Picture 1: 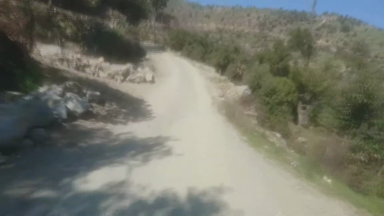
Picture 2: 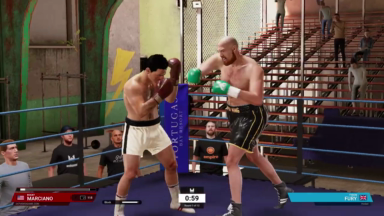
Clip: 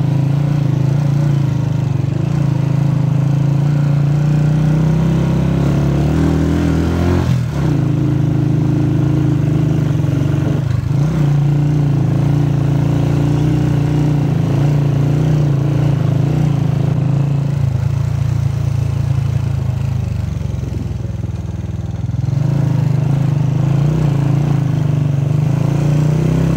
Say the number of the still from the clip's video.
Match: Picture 1